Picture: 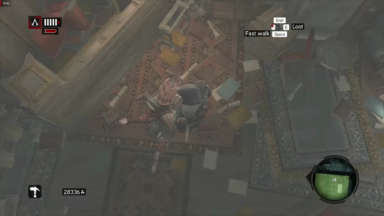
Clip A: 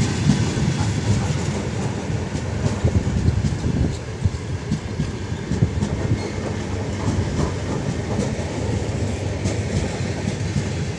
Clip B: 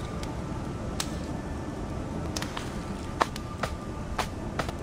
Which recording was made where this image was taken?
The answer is B